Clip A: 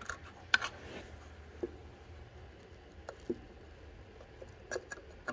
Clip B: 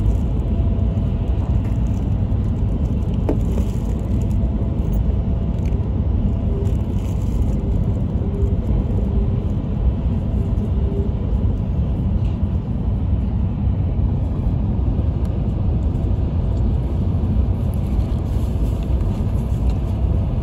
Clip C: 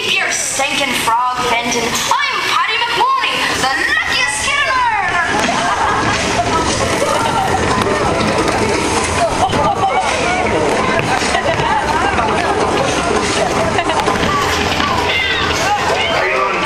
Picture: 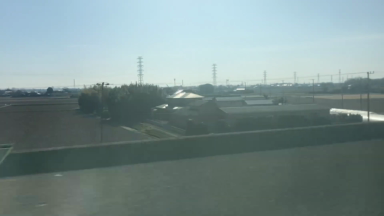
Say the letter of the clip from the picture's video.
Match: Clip B